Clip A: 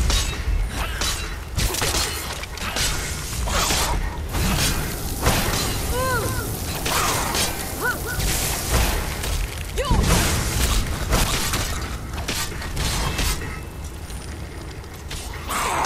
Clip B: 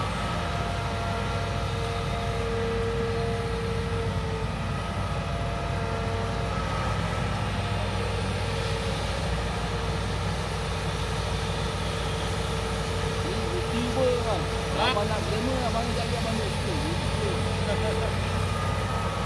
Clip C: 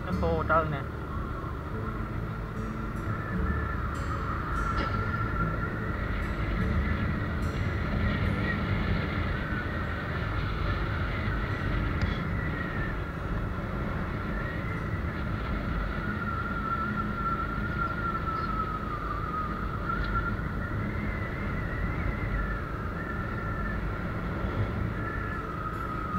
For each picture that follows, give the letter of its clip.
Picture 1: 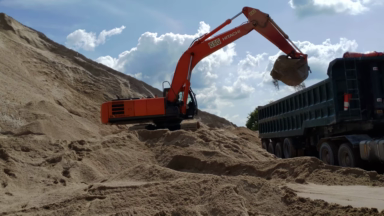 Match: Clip B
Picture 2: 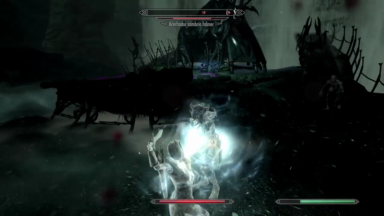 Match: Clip A